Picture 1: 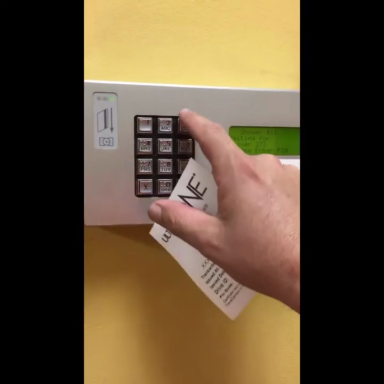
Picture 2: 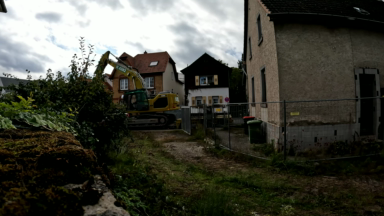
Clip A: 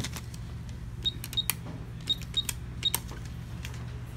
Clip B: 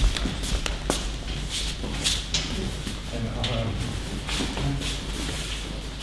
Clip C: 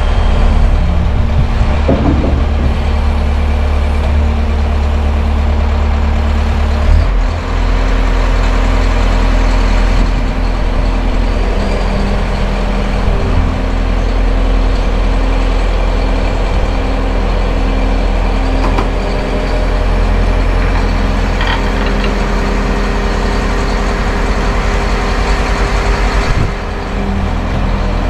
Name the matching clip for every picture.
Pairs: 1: A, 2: C